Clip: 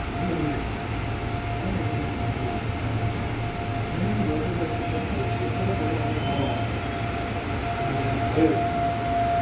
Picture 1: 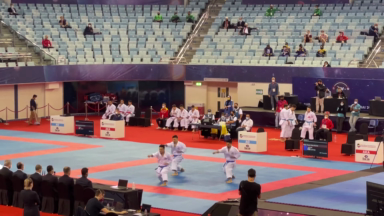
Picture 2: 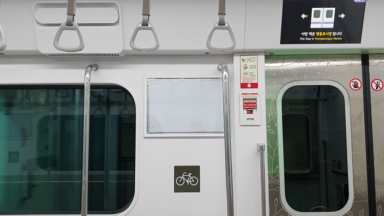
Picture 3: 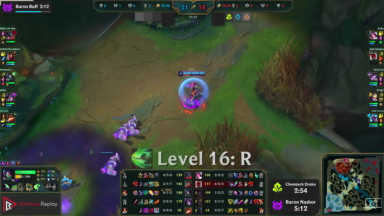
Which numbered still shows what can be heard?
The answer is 2